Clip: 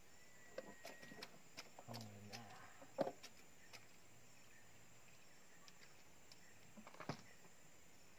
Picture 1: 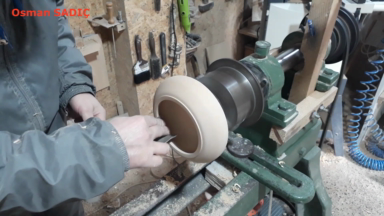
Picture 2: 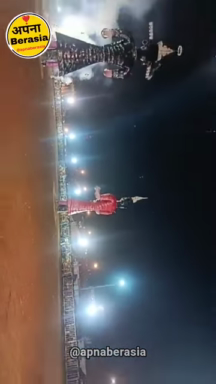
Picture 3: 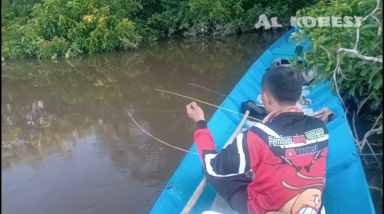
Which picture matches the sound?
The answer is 3